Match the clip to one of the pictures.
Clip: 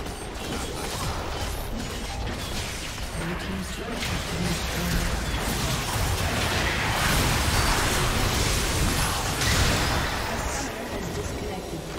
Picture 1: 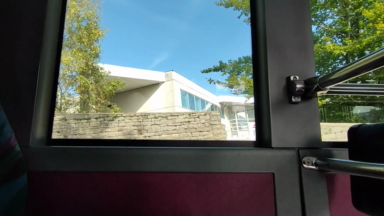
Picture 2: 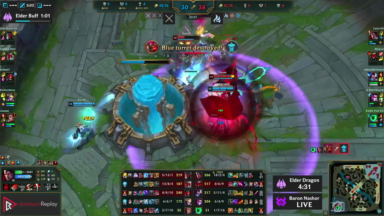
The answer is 2